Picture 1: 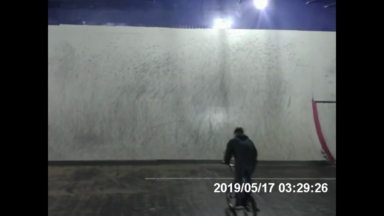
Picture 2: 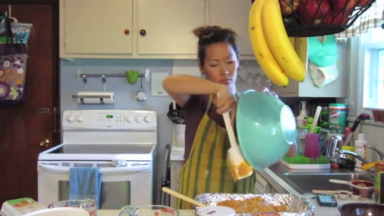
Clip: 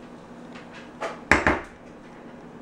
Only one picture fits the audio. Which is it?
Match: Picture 2